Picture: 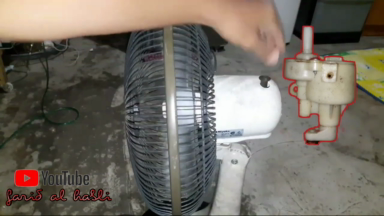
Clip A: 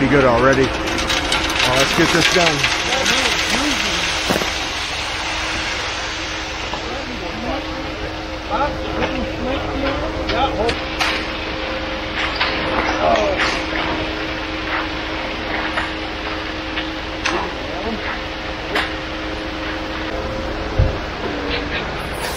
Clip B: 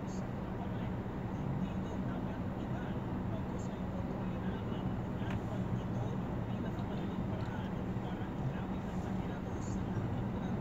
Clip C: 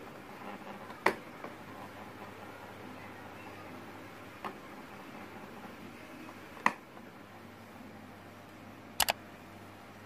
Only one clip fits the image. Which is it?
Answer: C